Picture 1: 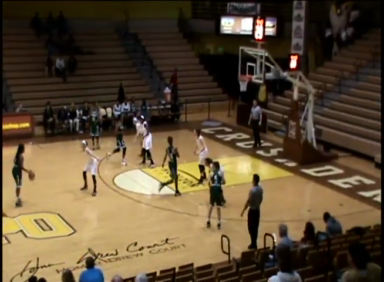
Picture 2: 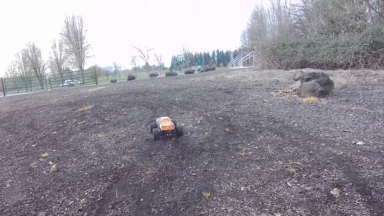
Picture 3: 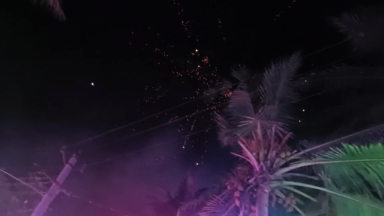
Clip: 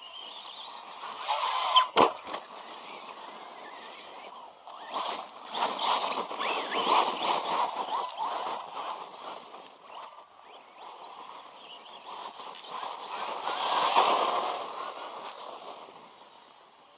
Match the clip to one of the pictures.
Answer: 2